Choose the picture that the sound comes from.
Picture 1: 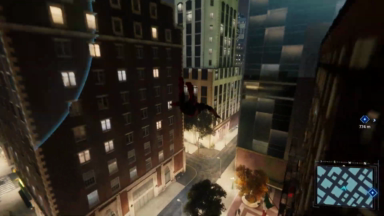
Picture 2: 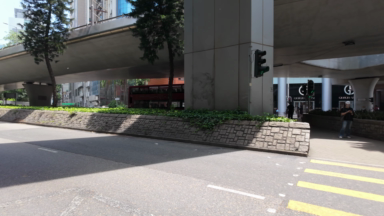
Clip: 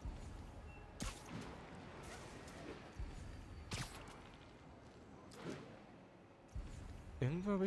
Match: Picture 1